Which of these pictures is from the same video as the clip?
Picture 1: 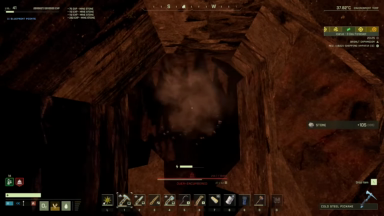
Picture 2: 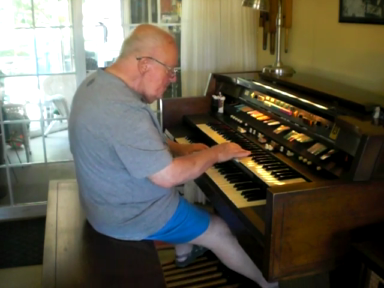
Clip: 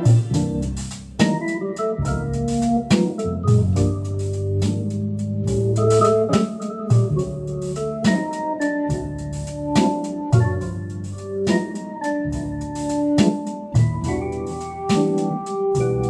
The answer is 2